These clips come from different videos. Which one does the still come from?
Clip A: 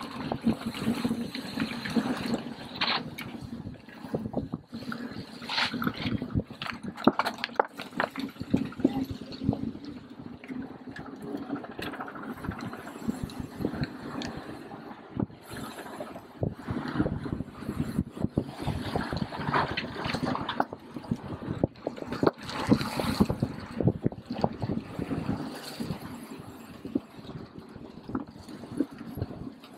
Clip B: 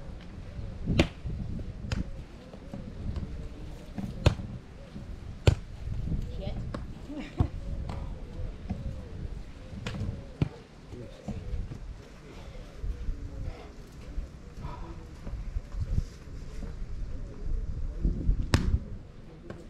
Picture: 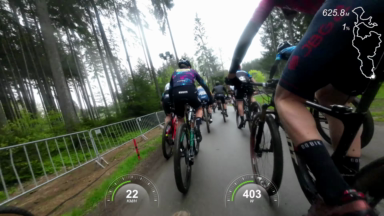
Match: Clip A